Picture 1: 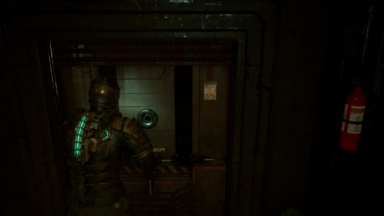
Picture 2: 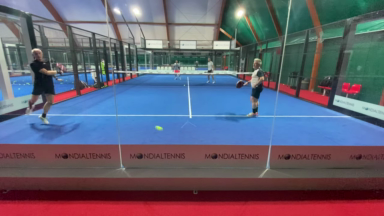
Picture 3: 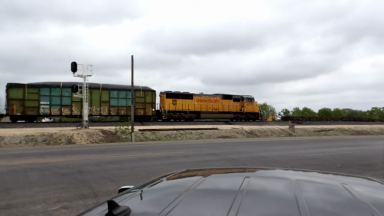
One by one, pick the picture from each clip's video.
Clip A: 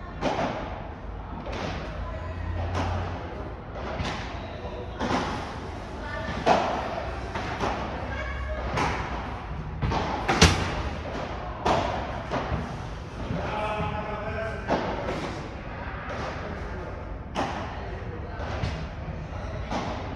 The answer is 2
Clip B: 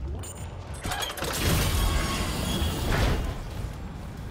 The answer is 1